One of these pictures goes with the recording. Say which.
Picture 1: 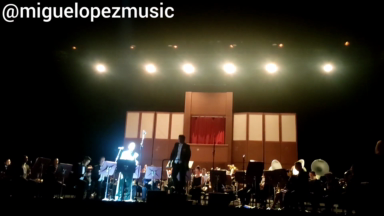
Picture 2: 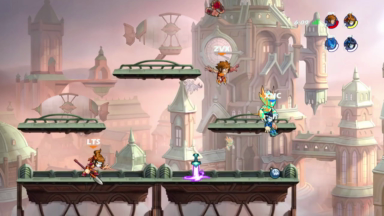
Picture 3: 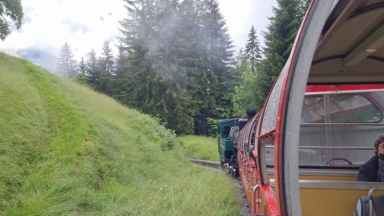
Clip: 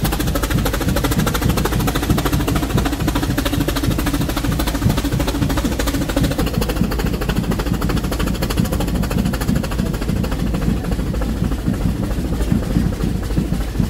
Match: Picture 3